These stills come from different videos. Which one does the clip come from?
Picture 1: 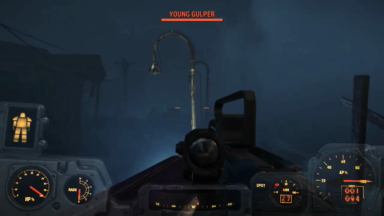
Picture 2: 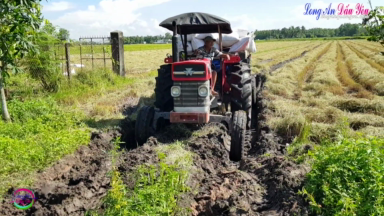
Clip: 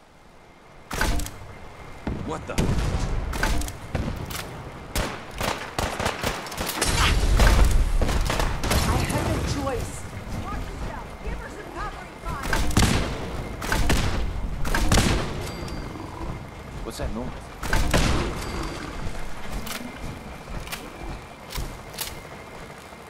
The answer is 1